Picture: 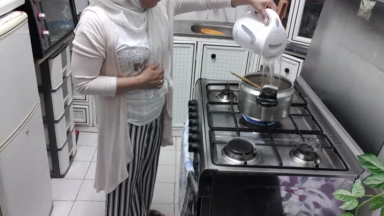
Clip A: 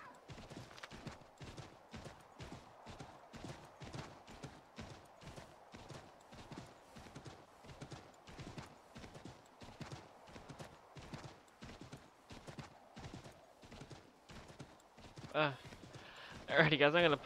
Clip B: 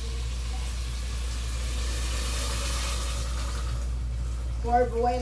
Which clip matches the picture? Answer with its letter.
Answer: B